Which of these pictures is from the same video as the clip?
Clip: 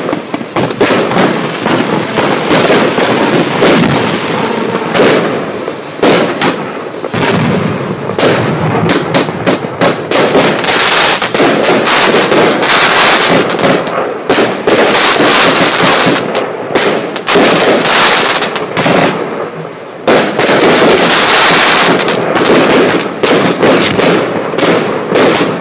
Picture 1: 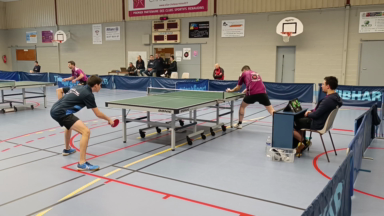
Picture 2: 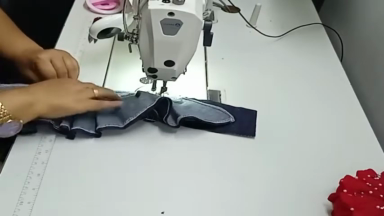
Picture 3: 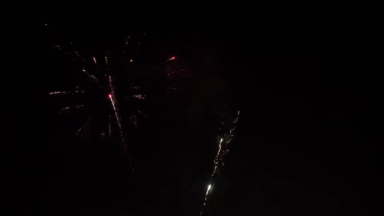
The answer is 3